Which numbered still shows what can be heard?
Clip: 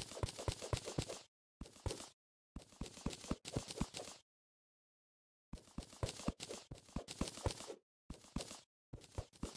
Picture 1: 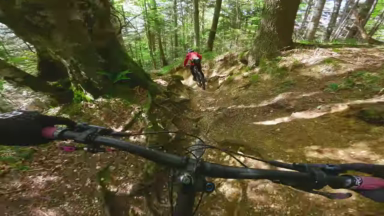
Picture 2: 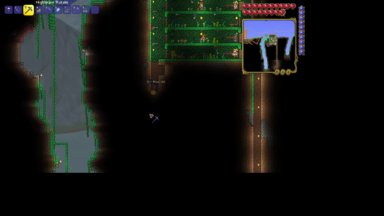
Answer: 2